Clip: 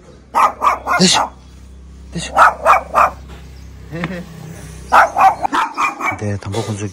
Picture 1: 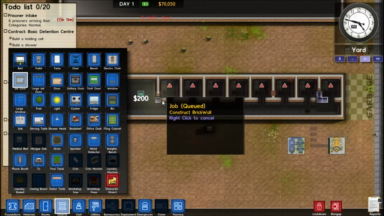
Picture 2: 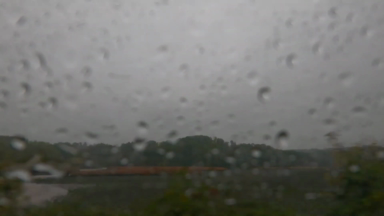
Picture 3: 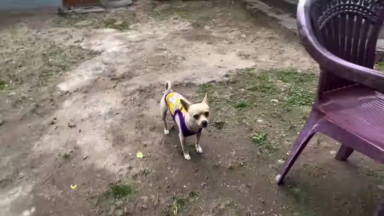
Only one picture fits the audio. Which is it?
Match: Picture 3